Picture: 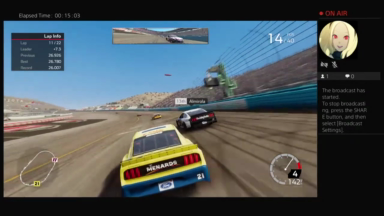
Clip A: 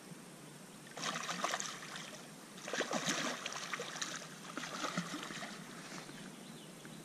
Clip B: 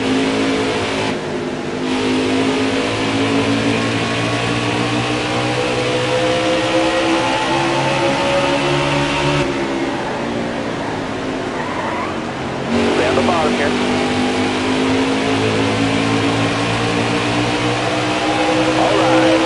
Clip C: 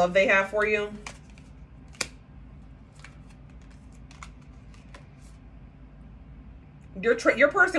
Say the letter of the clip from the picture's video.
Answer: B